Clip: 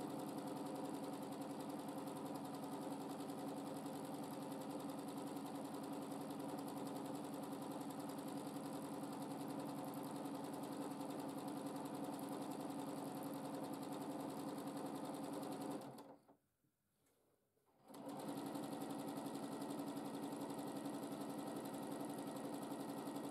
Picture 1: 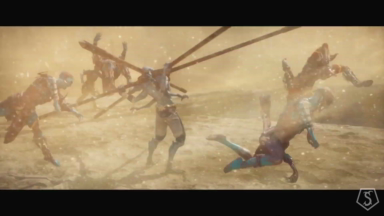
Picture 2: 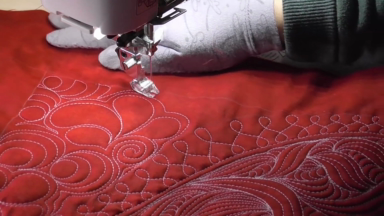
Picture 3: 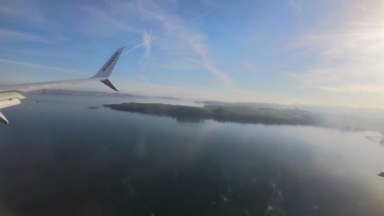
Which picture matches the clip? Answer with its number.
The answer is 2